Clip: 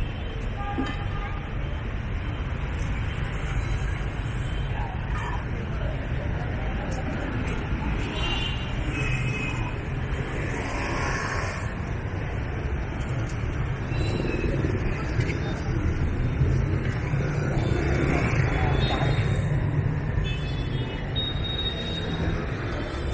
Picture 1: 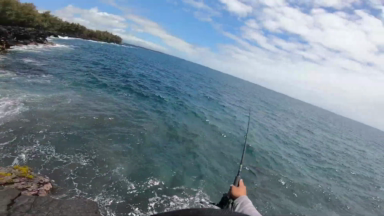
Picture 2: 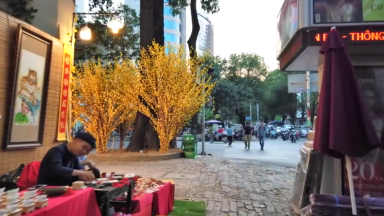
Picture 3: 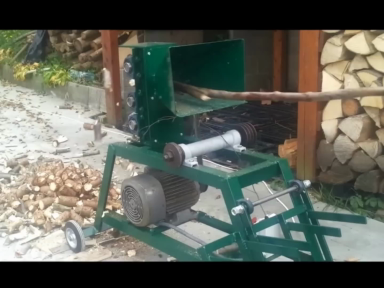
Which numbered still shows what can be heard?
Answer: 2